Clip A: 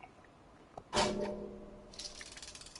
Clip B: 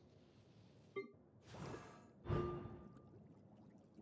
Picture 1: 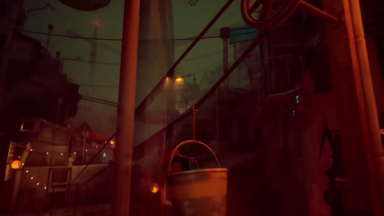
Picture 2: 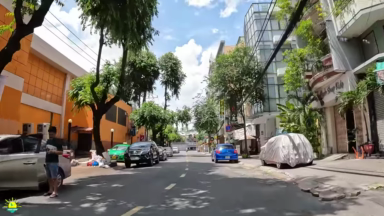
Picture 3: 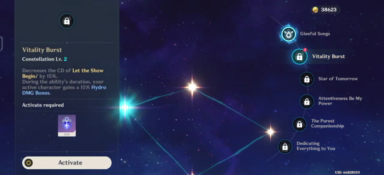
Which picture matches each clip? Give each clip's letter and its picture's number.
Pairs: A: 1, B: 3